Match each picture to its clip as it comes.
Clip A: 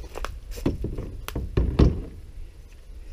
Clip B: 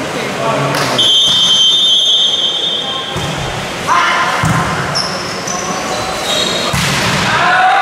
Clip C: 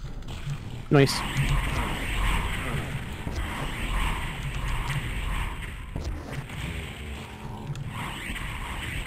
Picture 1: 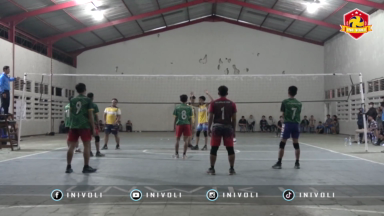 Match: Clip B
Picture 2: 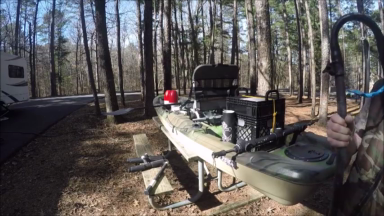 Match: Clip A